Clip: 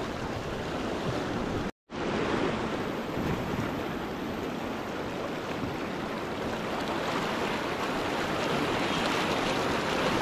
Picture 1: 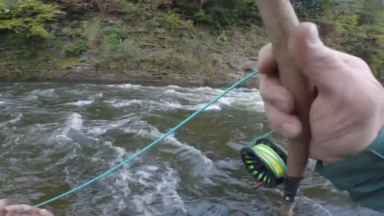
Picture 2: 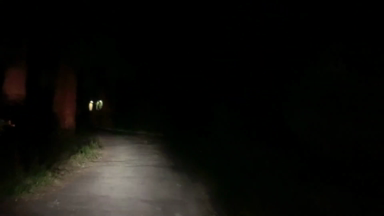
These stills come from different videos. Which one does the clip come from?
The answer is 1